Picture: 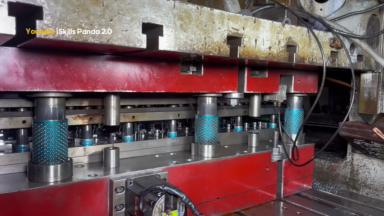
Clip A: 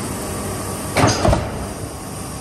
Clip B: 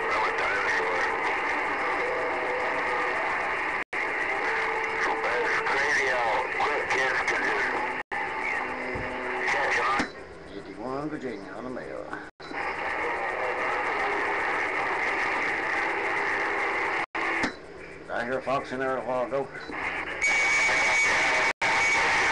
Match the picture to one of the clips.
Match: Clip A